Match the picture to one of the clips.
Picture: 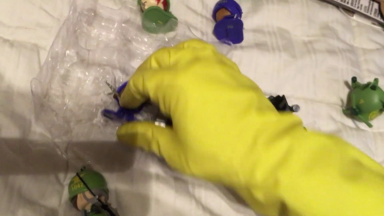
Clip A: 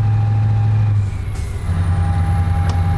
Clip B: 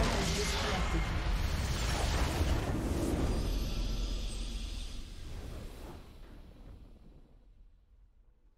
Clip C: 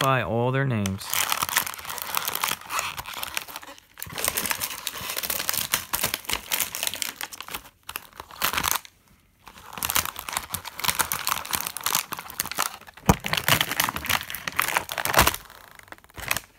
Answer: C